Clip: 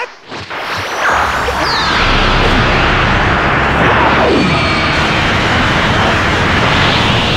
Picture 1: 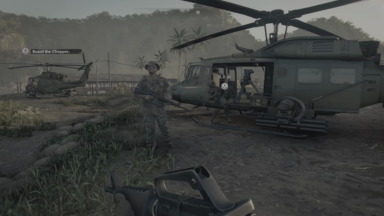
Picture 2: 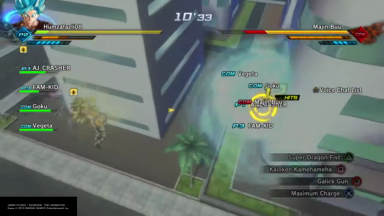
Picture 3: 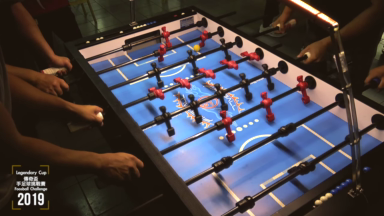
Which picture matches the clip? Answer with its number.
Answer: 2